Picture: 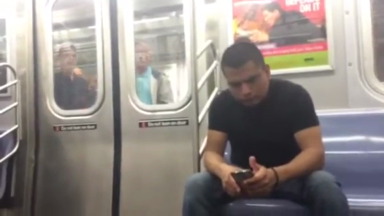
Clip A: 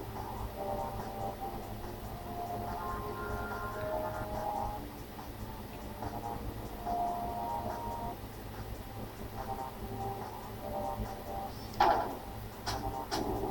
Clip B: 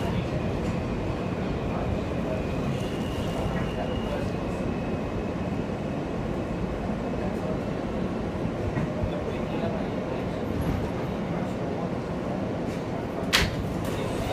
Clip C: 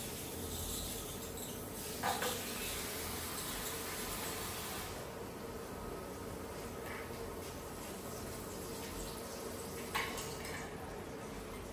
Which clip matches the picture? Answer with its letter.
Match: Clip B